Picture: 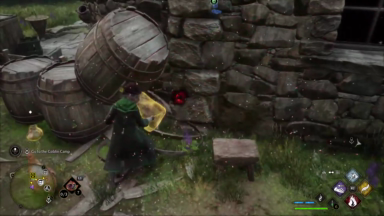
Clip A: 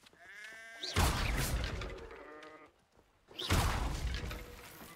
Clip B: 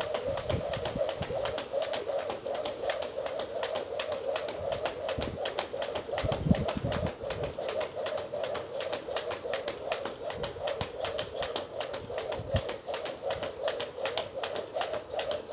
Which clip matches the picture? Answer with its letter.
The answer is A